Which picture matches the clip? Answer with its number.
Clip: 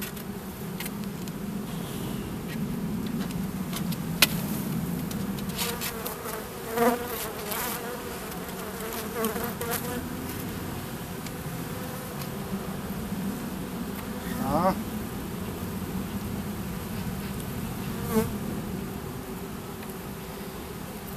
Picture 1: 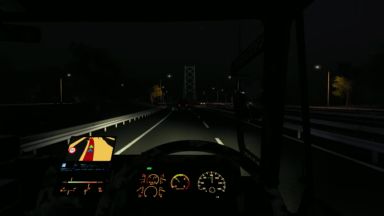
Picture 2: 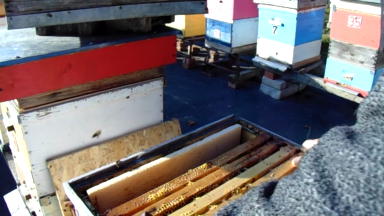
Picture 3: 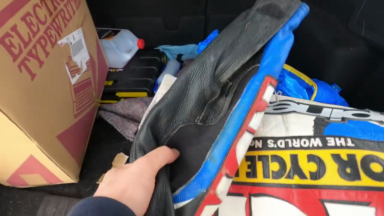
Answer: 2